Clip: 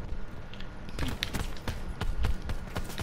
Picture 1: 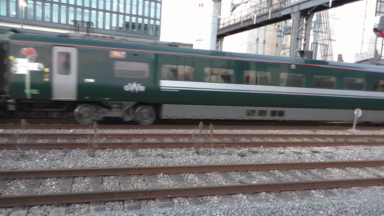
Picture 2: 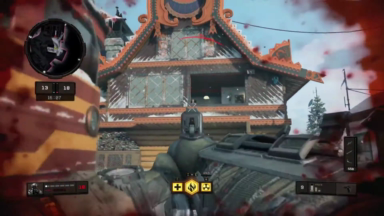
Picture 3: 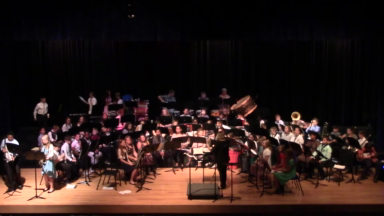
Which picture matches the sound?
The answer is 2